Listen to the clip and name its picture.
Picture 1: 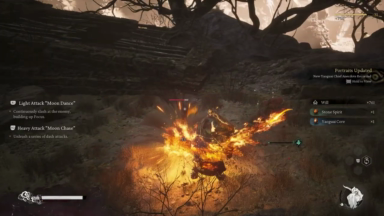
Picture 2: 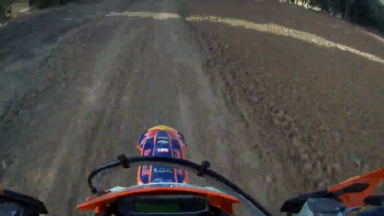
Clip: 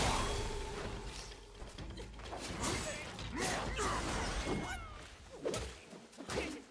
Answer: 1